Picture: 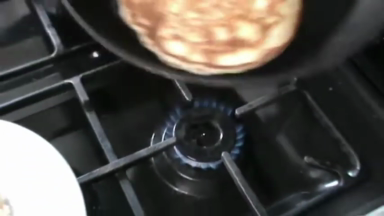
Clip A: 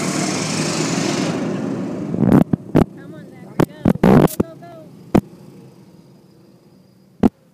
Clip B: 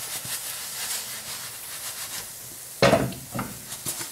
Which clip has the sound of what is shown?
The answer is B